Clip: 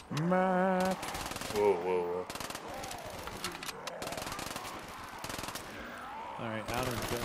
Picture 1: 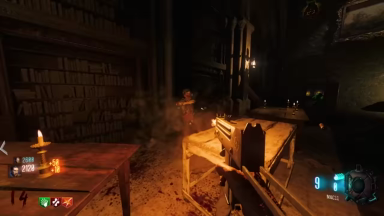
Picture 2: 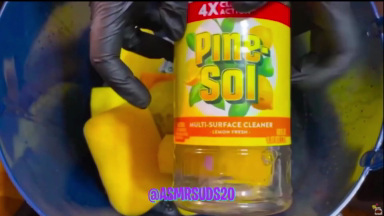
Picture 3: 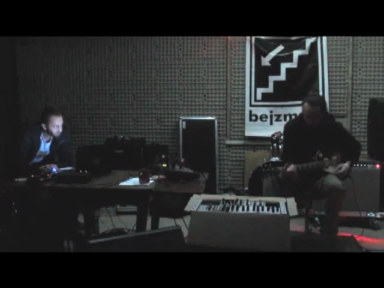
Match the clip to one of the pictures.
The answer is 1